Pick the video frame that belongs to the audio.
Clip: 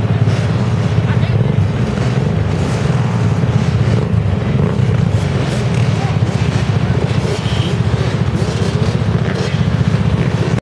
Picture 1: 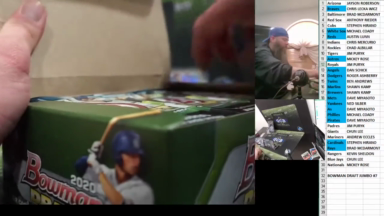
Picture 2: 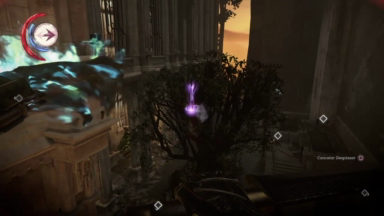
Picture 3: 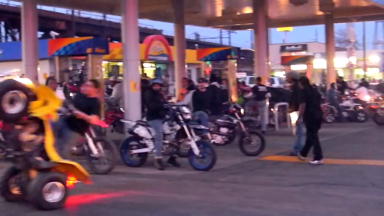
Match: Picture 3